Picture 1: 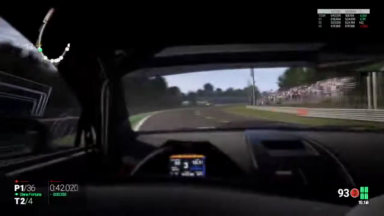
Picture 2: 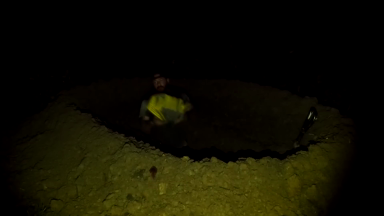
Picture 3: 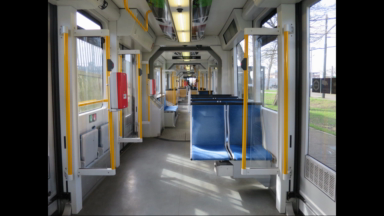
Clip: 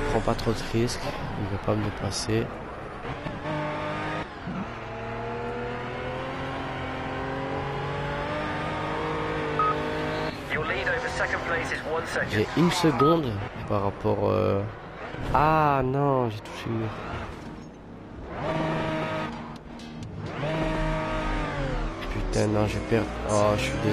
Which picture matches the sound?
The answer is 1